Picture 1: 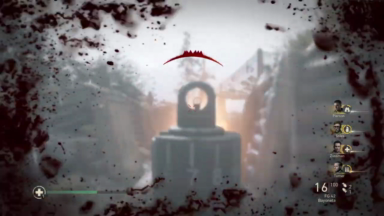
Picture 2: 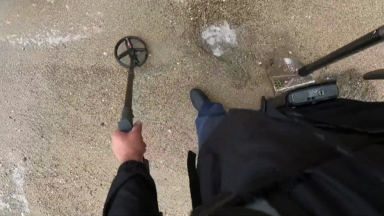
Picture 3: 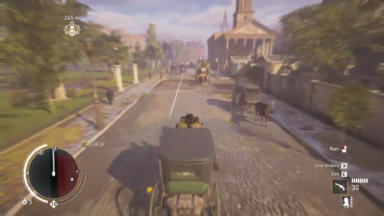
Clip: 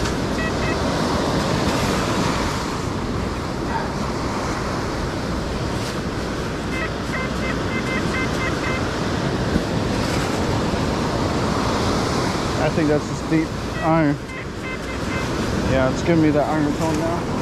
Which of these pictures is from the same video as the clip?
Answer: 2